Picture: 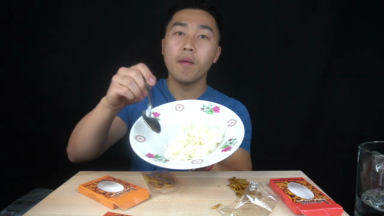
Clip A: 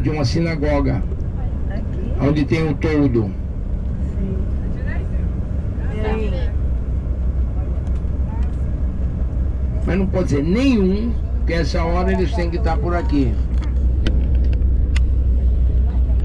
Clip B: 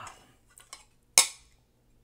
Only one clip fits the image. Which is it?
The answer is B